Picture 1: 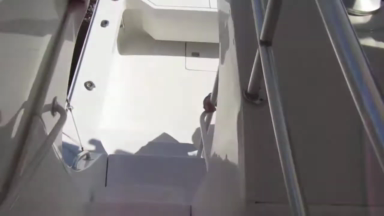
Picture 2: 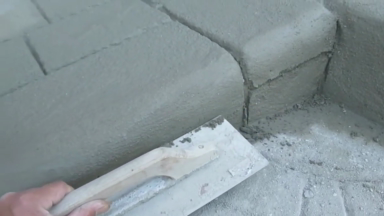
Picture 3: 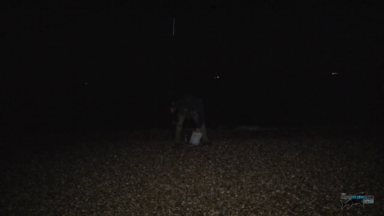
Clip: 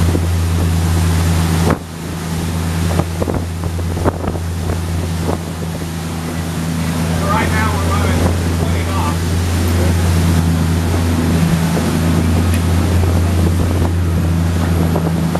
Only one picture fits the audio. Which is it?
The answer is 1